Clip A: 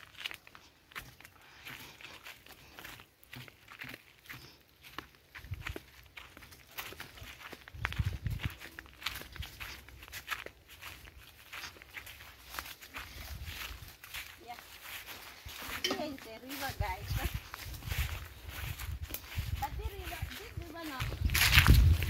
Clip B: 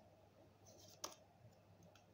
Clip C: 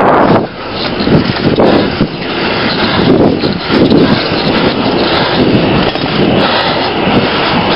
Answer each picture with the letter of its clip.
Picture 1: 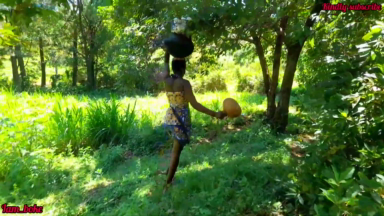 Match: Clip A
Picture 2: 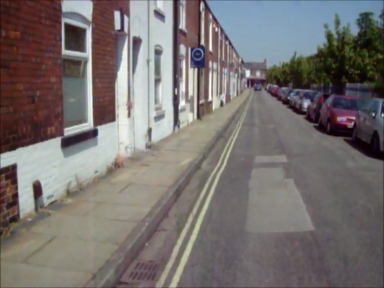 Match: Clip C